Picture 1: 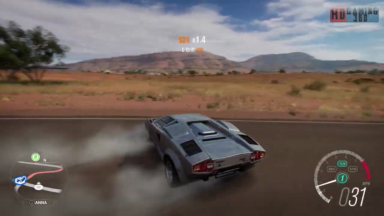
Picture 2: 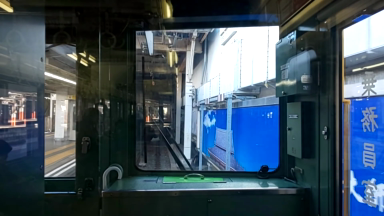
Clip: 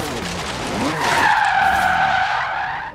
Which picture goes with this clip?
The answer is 1